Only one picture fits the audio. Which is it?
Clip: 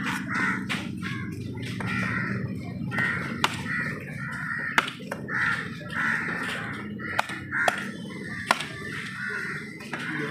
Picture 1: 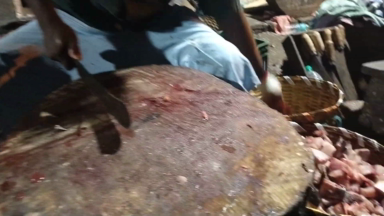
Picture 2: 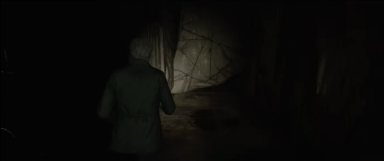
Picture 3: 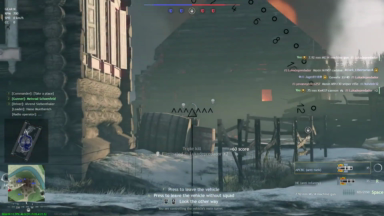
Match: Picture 1